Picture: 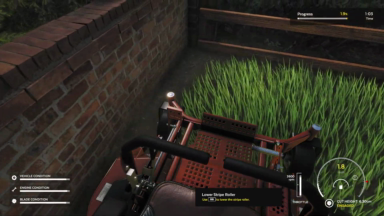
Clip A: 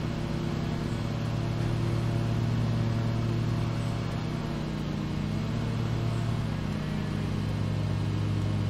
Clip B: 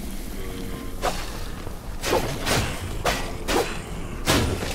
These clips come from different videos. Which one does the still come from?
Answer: A